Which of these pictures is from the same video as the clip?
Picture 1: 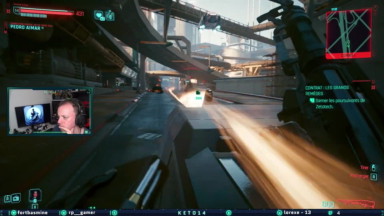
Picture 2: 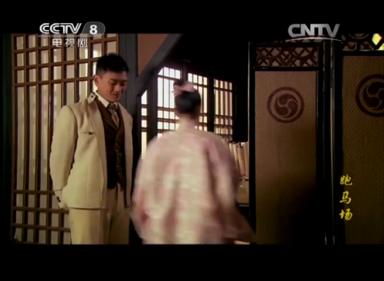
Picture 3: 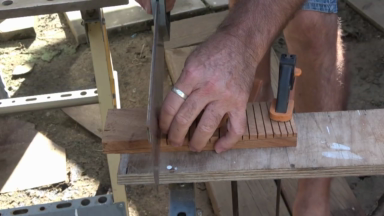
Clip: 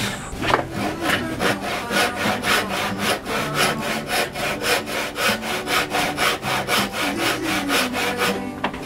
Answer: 3